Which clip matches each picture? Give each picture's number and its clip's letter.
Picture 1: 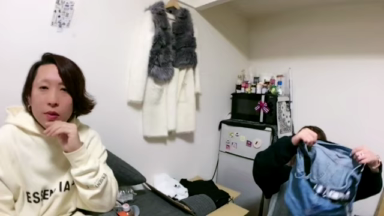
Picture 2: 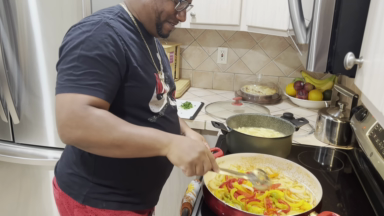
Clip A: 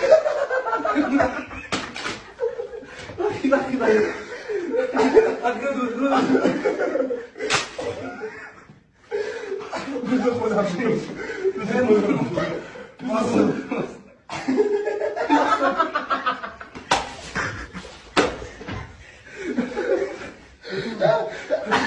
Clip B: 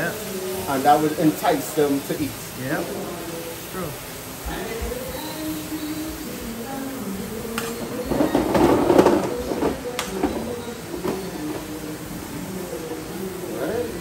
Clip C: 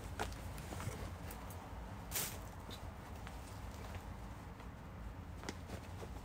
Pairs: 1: C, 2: B